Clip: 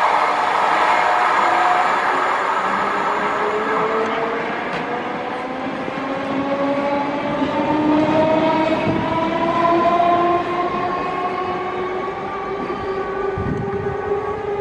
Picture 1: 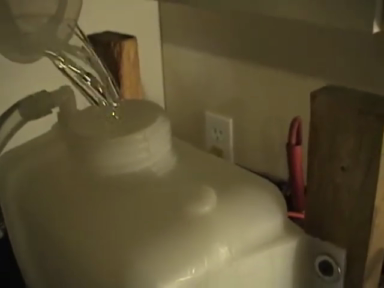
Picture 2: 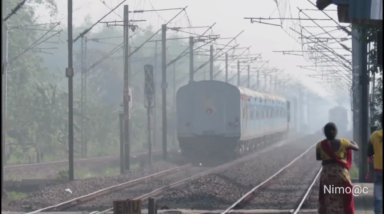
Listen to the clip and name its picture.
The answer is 2